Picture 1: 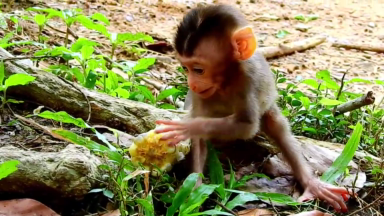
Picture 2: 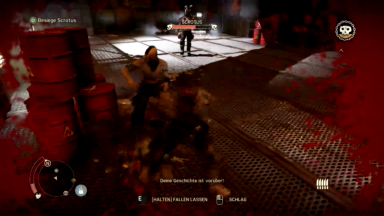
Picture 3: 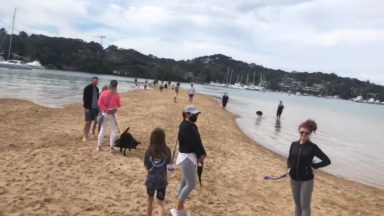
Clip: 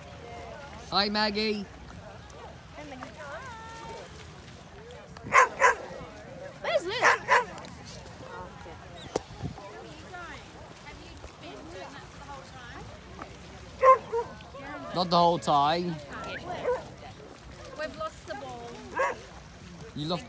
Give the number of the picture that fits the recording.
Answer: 3